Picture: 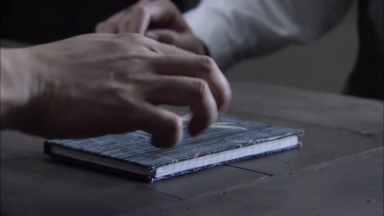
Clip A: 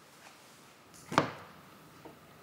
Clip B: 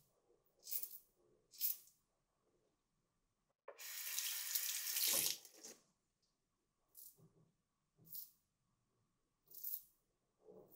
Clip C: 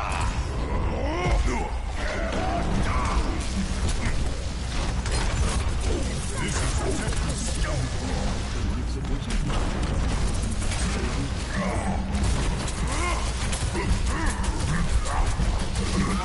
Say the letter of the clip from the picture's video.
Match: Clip A